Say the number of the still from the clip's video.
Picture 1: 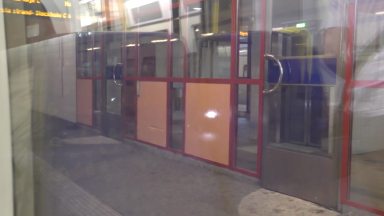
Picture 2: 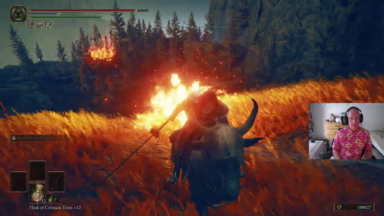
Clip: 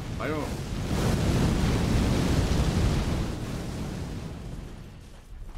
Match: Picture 2